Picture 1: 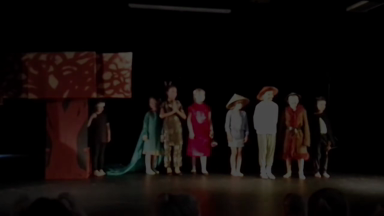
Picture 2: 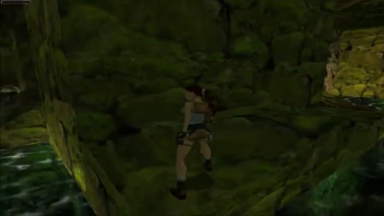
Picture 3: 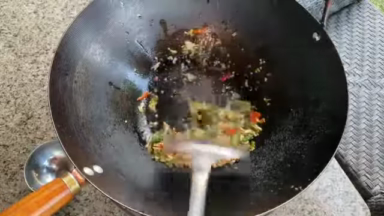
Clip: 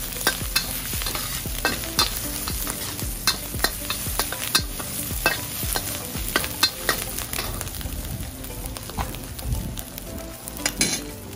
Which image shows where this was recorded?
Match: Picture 3